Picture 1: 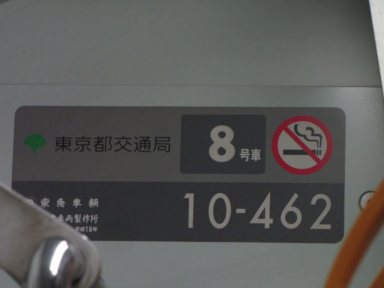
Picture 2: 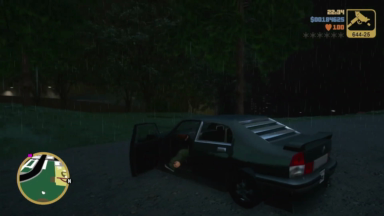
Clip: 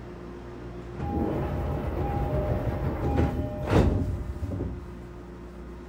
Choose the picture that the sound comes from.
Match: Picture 1